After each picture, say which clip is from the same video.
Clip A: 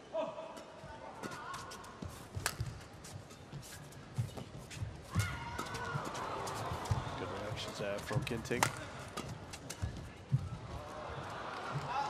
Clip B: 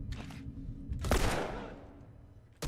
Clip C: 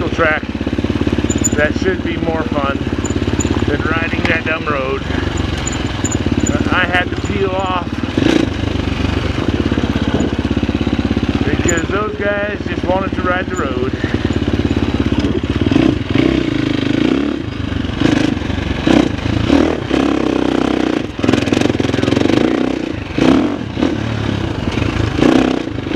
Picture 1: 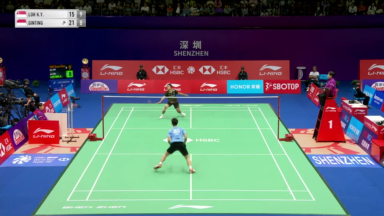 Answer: A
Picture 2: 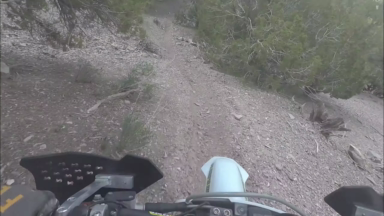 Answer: C